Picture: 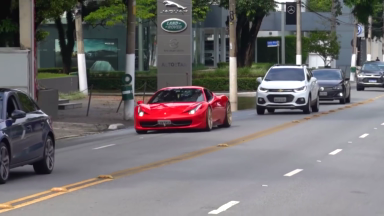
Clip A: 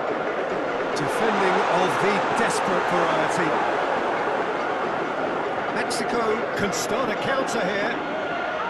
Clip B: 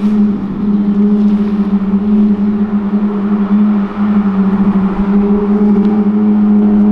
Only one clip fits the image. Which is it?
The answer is B